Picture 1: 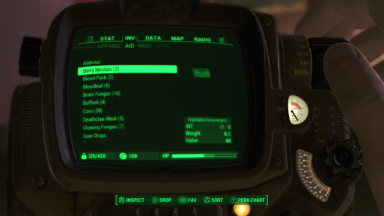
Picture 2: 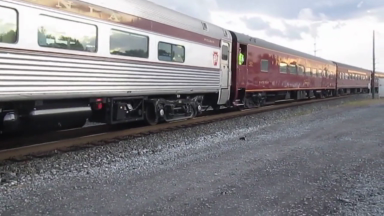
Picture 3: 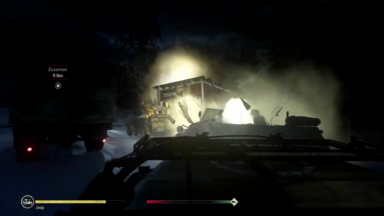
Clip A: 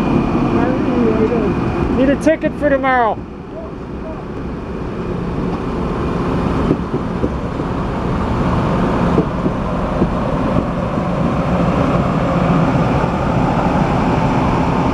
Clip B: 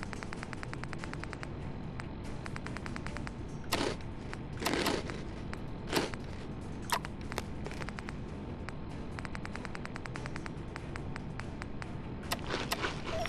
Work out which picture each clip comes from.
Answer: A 2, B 1